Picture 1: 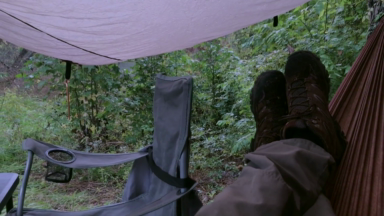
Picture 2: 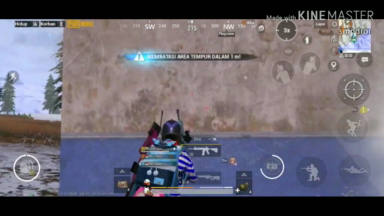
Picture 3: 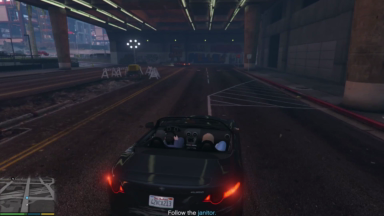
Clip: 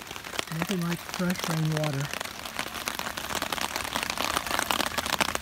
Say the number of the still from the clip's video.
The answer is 1